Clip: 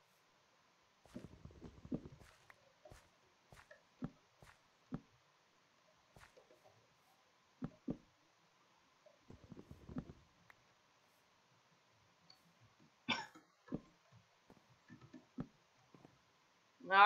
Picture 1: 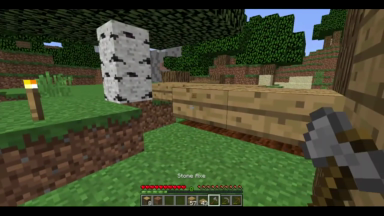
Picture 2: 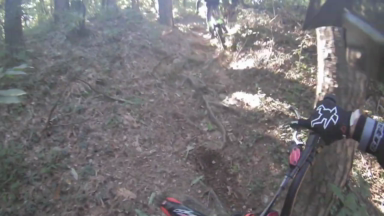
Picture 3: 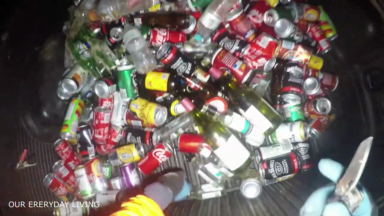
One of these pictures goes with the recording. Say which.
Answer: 1